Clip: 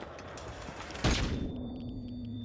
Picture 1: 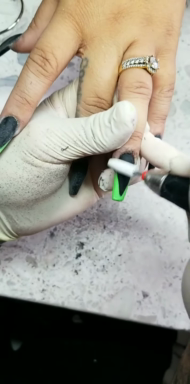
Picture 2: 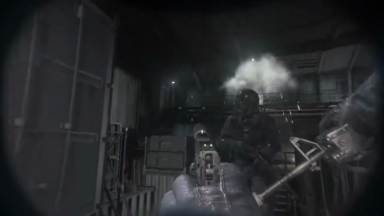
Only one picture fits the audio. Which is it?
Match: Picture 2